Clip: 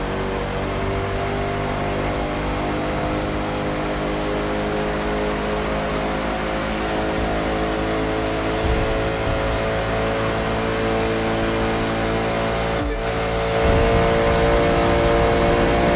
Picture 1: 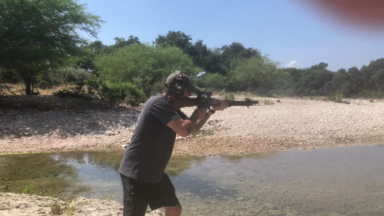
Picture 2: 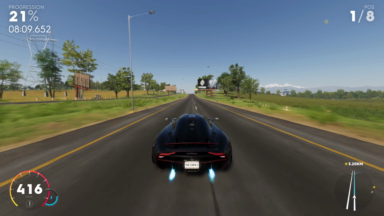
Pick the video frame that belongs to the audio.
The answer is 2